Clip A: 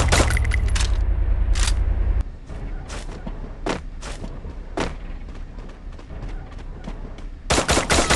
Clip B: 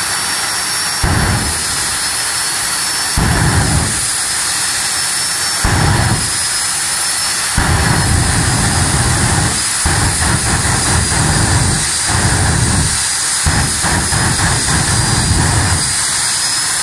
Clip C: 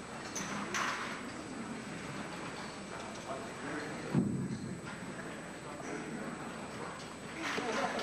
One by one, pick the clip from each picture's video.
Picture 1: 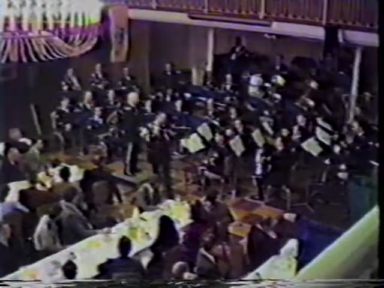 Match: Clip C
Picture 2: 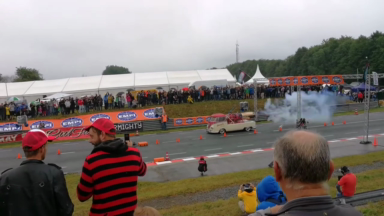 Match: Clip B